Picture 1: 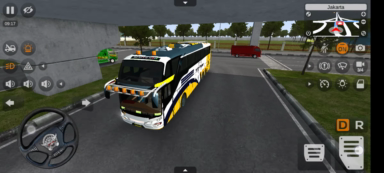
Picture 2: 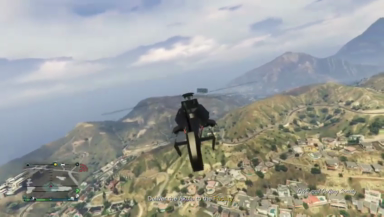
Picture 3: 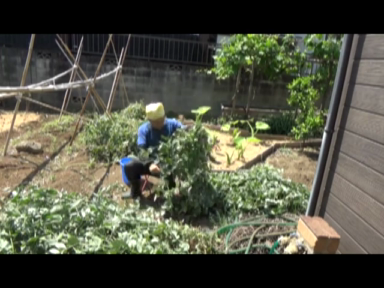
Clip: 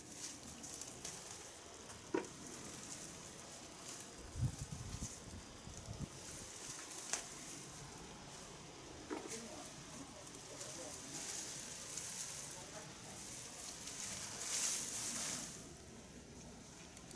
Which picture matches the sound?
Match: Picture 3